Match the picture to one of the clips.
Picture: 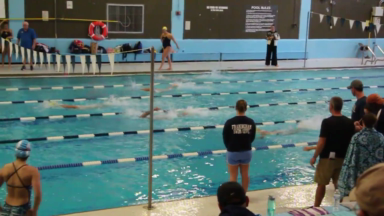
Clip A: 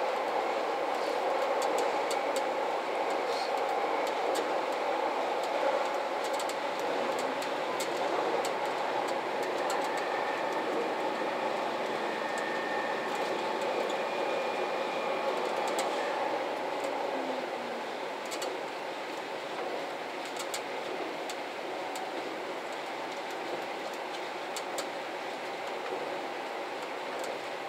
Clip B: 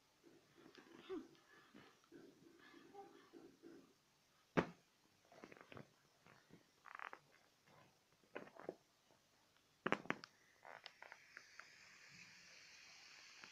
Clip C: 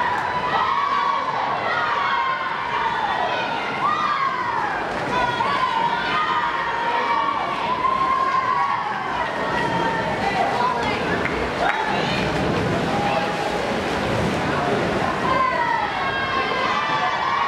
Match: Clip C